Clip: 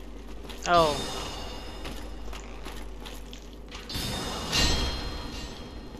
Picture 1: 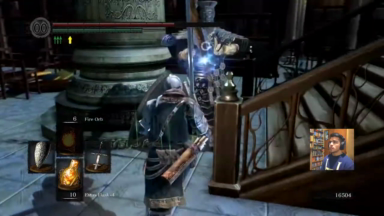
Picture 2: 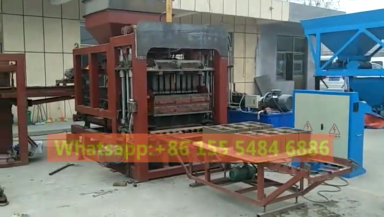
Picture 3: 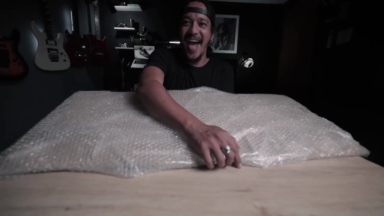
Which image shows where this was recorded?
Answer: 1